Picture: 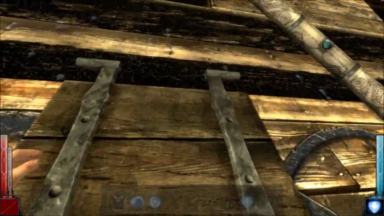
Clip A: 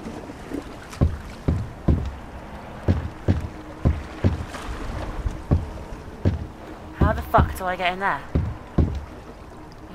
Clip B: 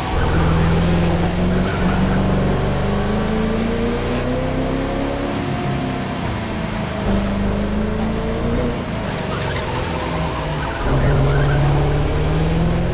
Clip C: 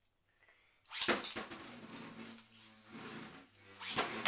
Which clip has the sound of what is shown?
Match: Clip A